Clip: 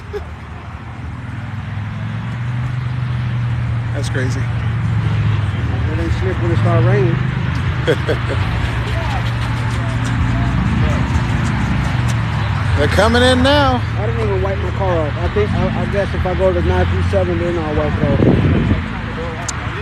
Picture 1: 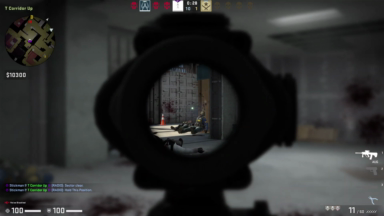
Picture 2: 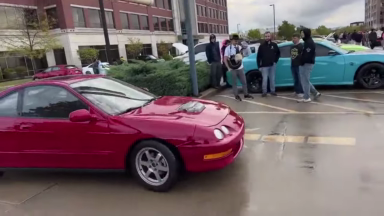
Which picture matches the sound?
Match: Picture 2